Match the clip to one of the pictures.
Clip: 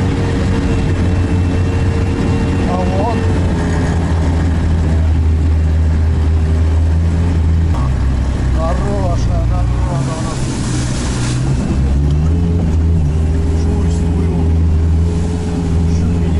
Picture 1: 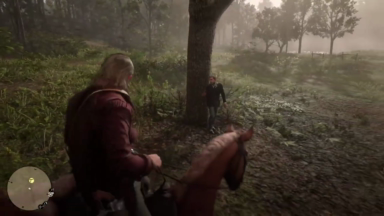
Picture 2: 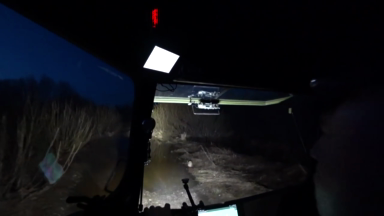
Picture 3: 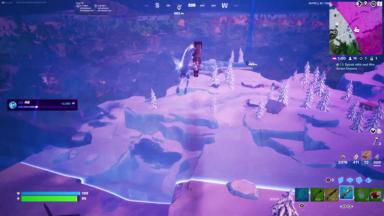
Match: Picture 2